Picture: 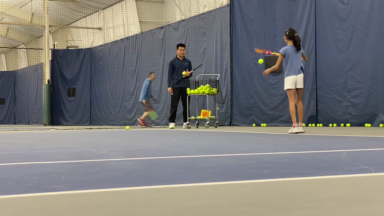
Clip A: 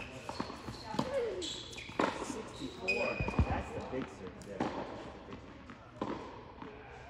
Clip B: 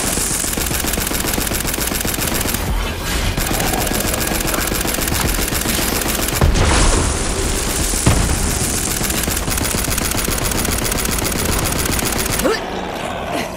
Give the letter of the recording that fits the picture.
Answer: A